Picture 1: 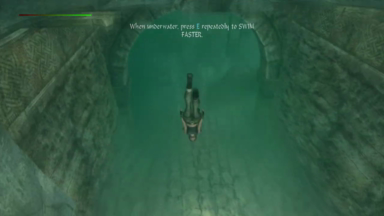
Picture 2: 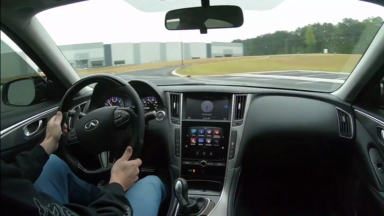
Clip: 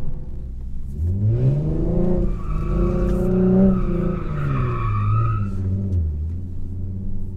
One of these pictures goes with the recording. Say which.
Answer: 2